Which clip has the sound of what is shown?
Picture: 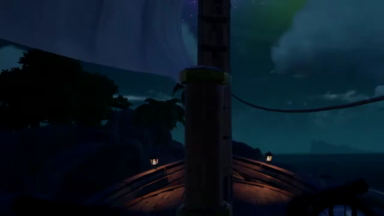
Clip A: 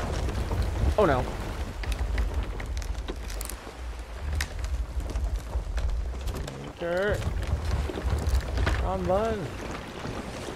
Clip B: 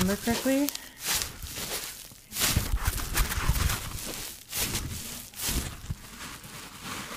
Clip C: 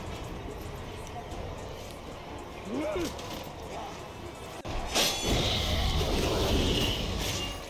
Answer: A